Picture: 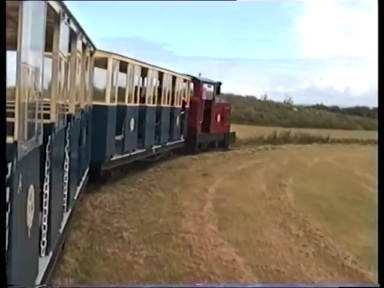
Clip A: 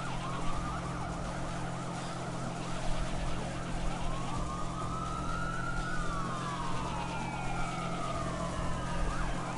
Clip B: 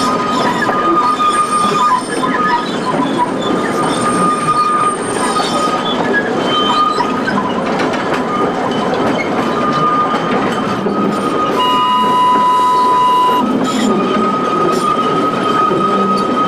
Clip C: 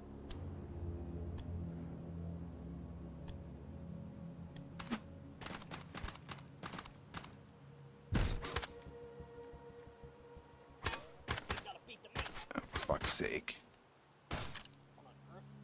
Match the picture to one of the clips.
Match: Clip B